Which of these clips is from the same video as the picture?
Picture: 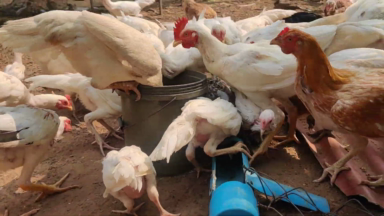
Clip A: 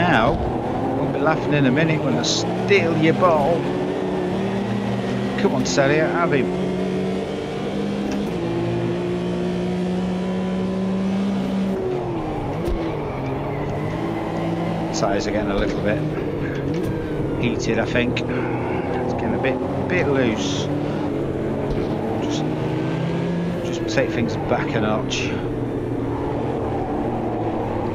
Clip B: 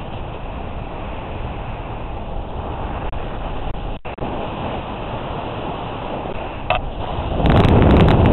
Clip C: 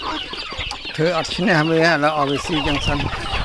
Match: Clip C